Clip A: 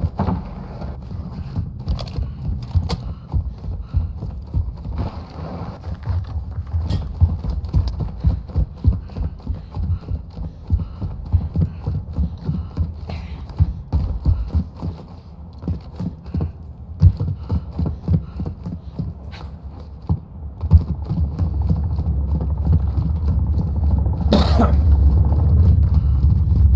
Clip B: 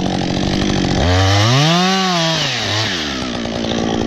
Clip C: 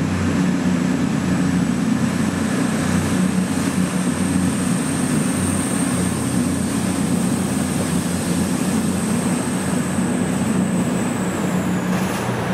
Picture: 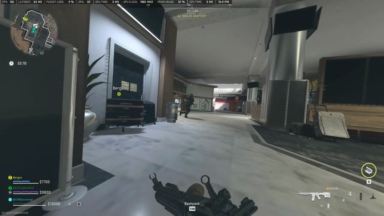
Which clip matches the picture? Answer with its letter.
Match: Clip A